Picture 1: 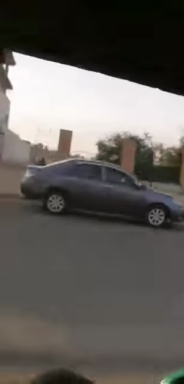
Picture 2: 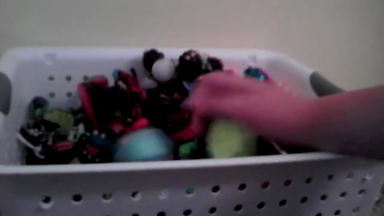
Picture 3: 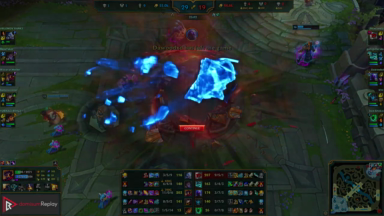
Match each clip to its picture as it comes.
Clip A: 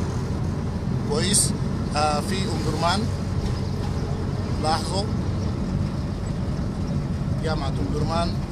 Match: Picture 1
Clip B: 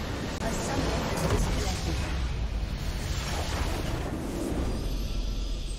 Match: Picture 3